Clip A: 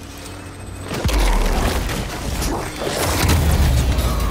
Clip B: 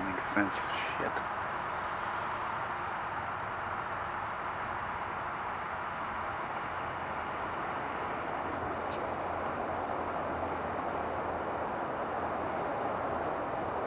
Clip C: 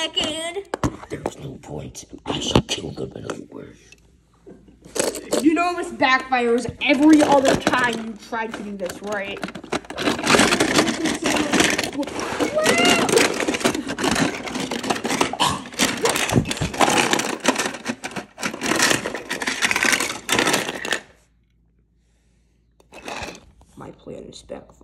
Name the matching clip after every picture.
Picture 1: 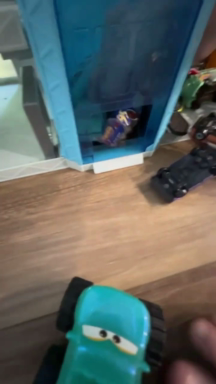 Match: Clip C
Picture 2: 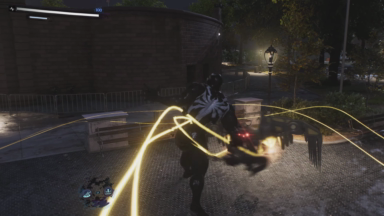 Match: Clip A